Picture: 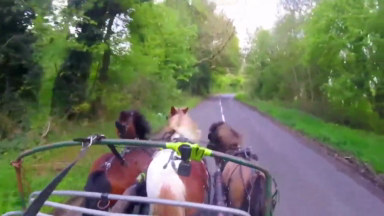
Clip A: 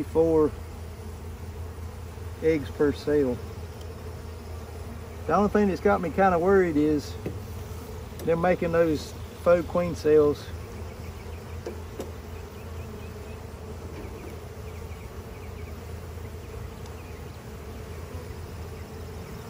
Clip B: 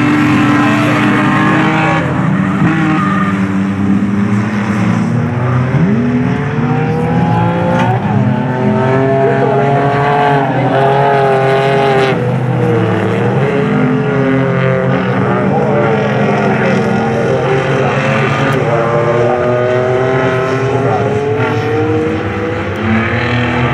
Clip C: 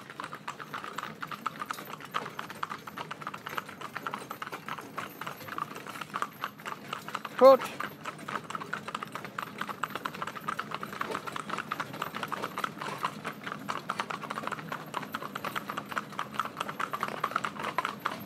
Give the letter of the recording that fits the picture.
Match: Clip C